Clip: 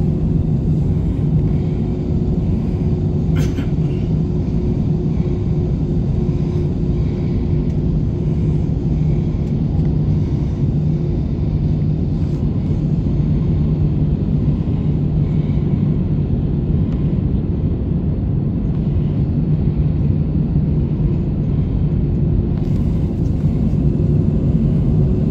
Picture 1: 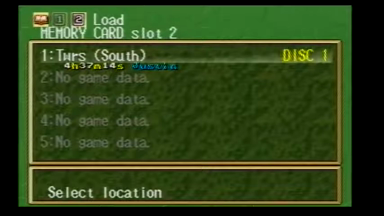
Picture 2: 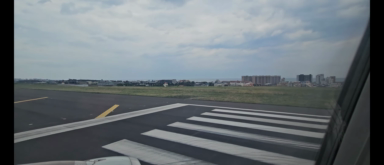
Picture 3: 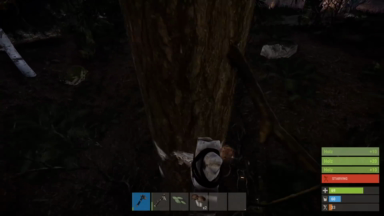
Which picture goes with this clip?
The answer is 2